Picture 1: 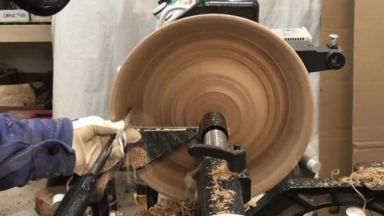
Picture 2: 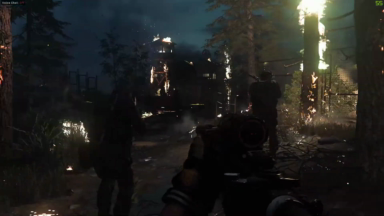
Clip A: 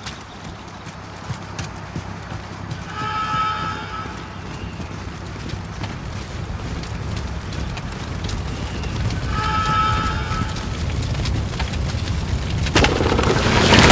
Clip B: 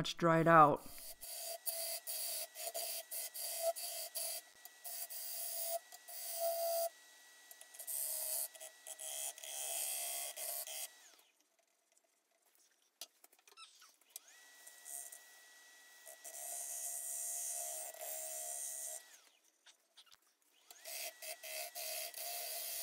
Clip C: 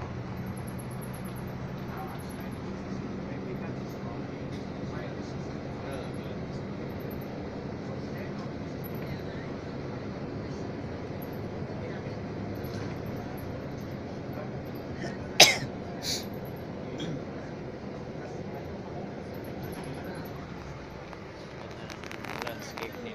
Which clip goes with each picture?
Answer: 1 B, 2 A